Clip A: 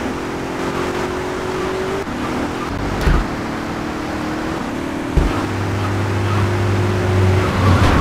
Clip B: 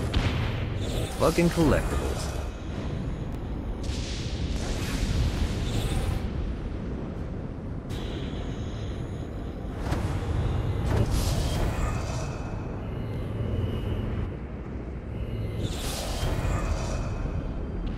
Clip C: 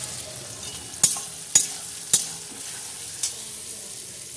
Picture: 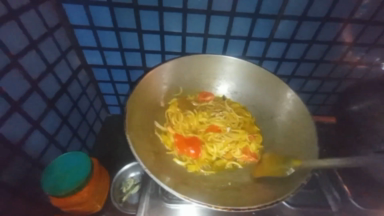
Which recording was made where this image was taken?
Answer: C